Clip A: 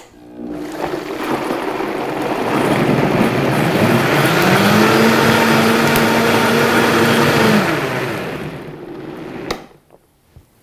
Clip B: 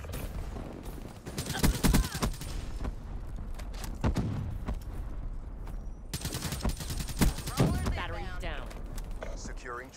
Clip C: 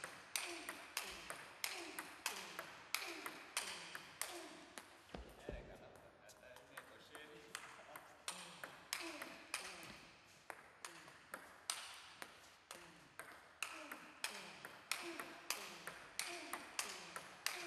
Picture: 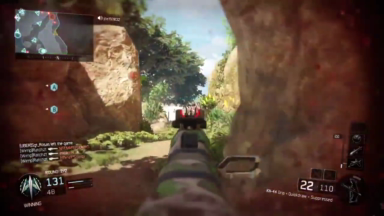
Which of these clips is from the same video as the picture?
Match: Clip B